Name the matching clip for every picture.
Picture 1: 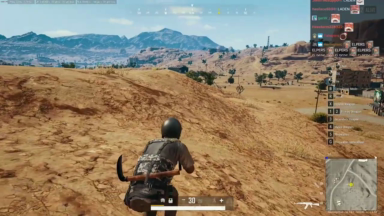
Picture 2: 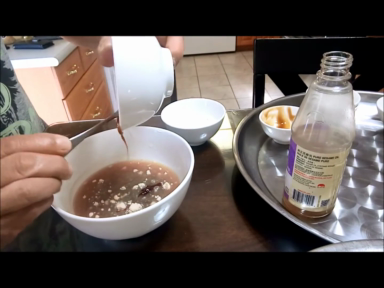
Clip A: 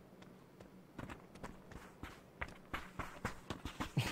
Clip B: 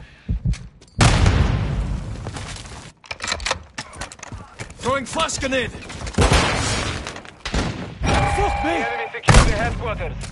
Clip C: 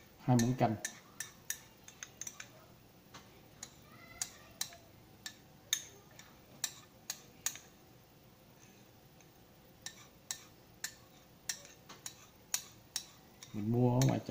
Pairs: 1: A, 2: C